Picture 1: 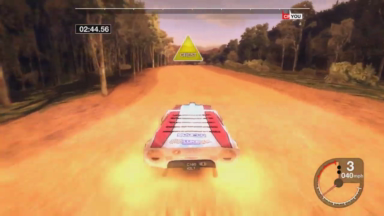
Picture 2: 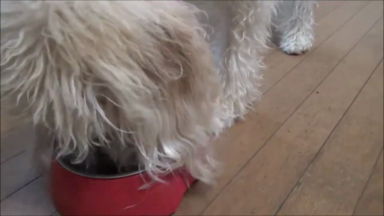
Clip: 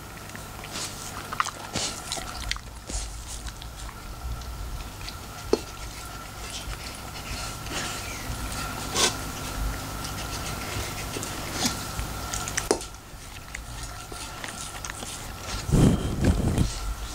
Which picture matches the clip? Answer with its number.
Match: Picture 2